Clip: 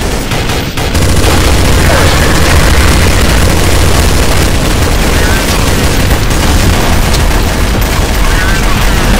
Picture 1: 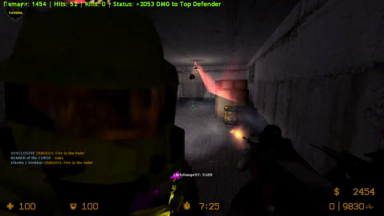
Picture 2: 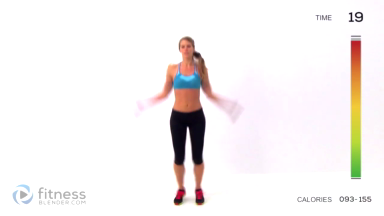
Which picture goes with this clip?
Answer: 1